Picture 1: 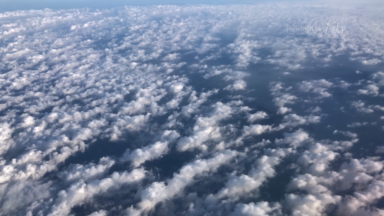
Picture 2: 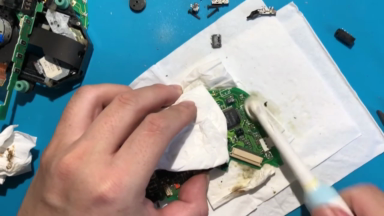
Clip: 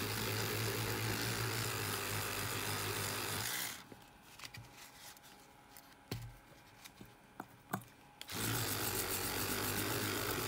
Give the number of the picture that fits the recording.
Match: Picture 2